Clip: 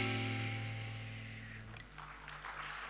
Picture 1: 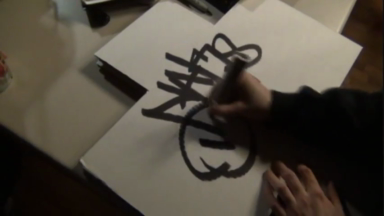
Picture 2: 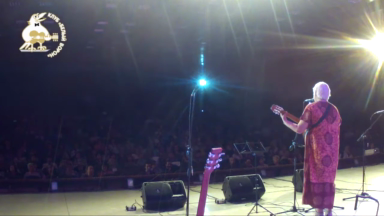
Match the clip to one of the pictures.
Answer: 2